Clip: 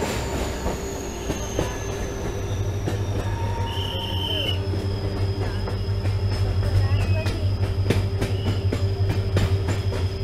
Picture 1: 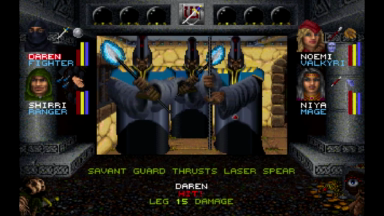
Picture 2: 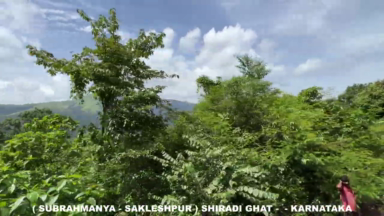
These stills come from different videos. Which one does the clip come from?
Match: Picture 2